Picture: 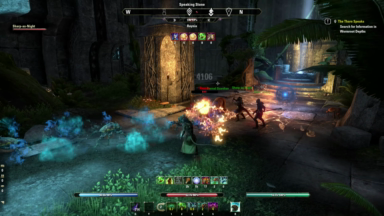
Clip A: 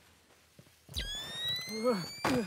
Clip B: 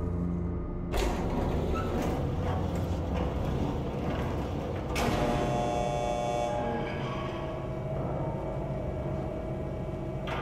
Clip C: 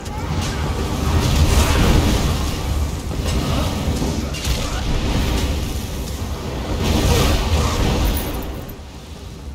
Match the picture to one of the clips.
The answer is C